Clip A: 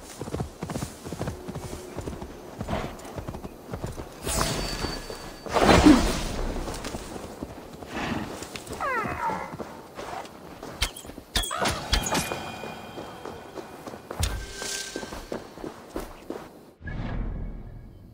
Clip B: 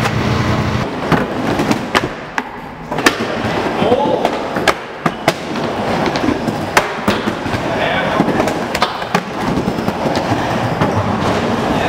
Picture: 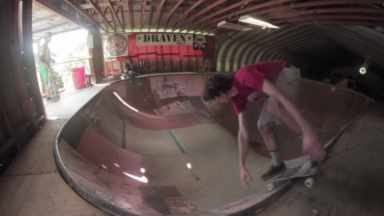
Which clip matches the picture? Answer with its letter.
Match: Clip B